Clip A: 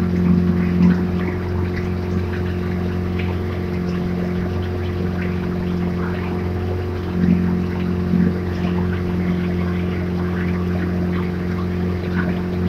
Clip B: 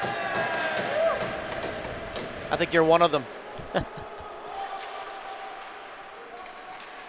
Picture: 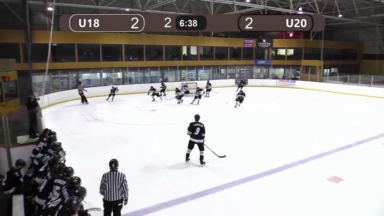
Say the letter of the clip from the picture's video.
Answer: B